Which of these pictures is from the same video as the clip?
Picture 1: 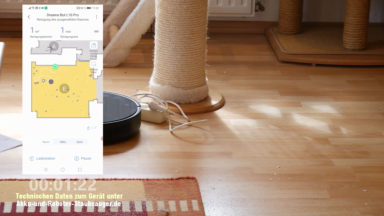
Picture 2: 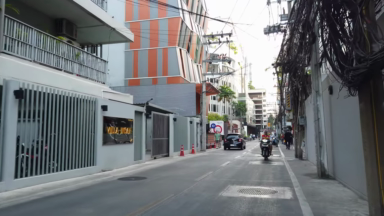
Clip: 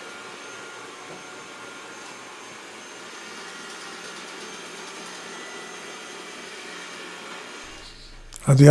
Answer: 1